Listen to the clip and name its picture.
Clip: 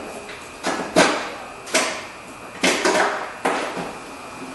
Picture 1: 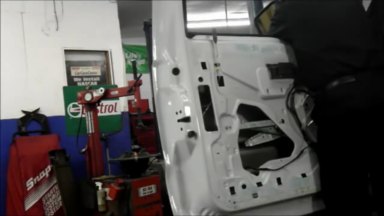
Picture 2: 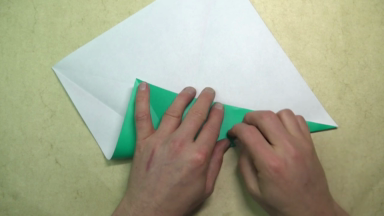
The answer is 1